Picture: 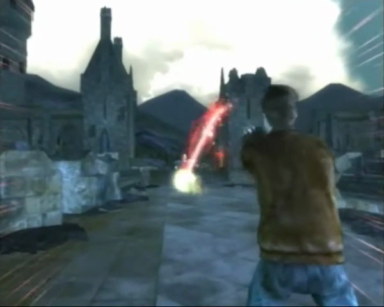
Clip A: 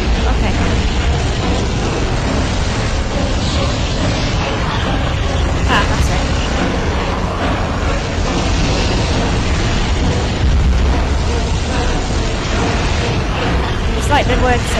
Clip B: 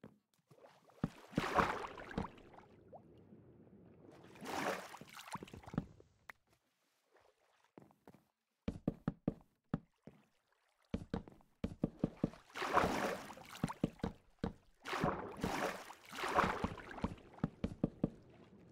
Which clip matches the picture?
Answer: A